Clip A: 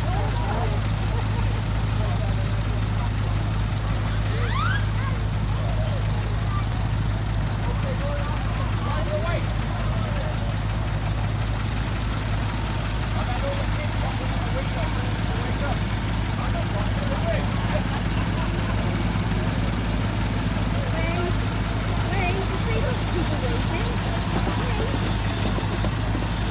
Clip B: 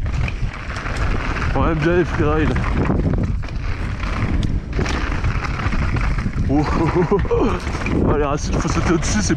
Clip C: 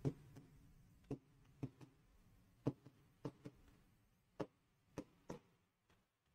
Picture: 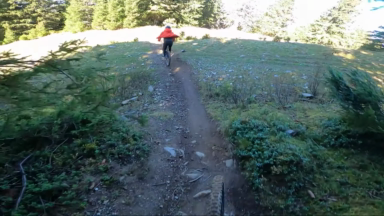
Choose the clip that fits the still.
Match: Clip B